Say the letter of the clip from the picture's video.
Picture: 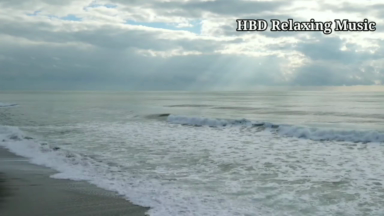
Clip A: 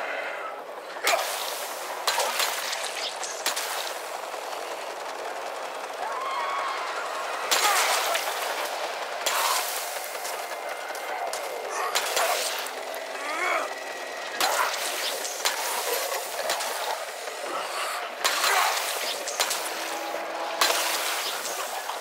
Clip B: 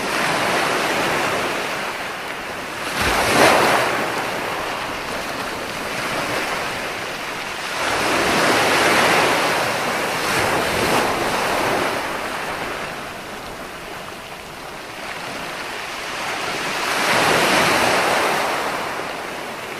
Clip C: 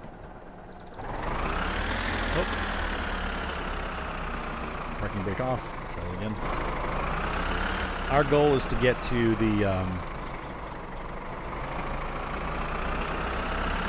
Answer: B